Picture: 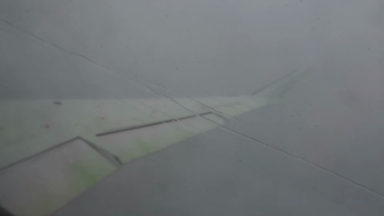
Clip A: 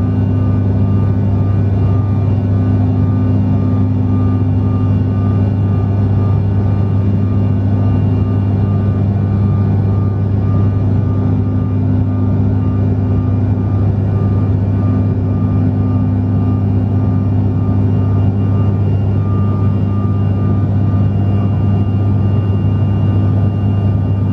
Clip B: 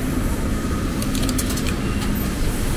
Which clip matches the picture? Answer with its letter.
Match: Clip A